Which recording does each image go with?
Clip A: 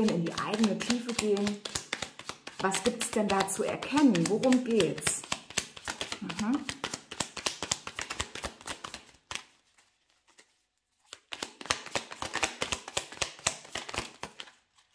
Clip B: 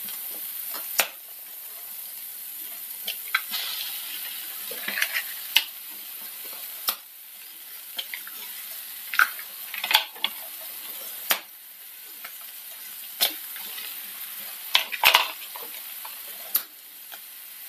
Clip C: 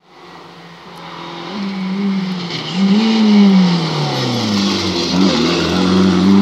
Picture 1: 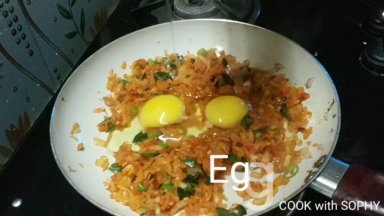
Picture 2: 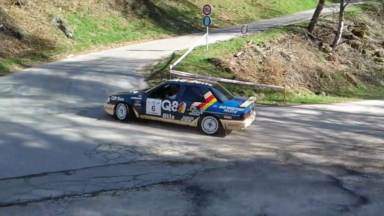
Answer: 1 B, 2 C